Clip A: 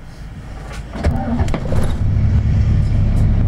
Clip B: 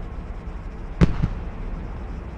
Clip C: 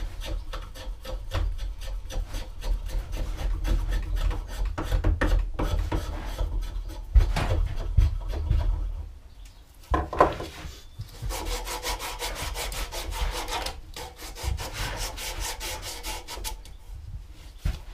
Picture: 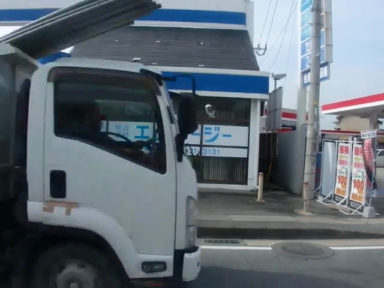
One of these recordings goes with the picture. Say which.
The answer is A